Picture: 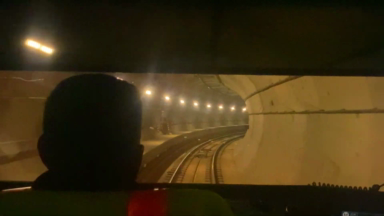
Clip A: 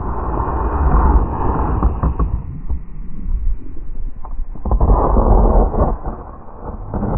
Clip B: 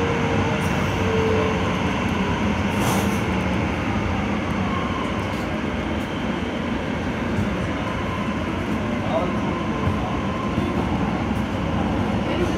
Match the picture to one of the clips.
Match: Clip B